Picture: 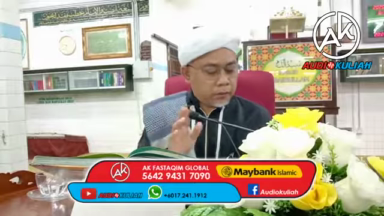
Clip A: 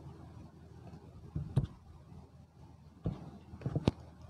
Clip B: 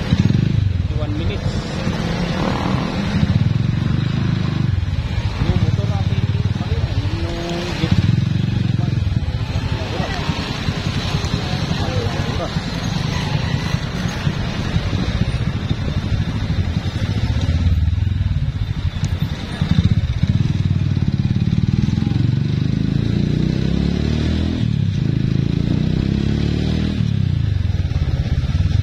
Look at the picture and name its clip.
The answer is A